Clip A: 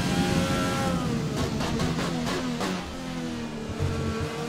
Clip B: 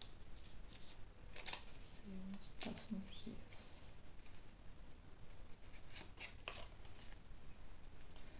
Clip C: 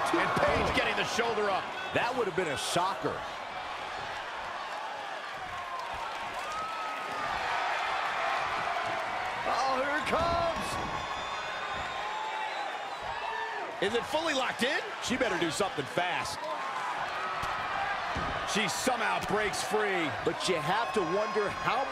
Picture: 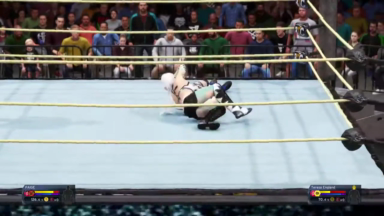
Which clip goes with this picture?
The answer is C